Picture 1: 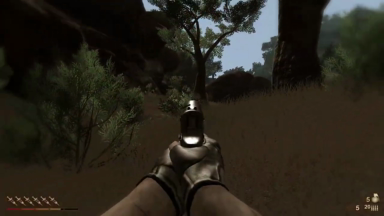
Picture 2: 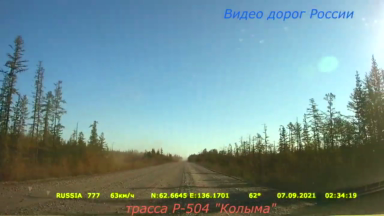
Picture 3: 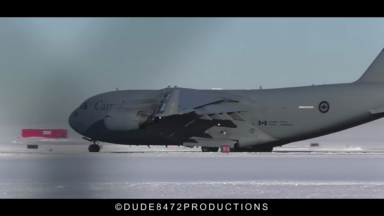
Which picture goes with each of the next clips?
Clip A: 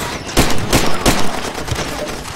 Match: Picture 1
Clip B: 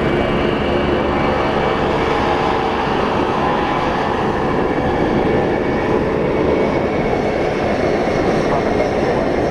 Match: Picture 3